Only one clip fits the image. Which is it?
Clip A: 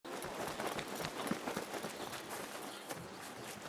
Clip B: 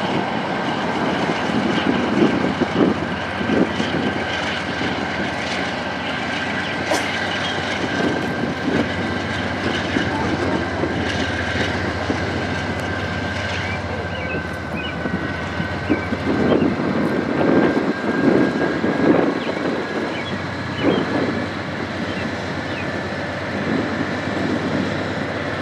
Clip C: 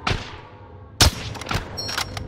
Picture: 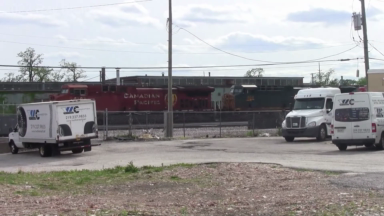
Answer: B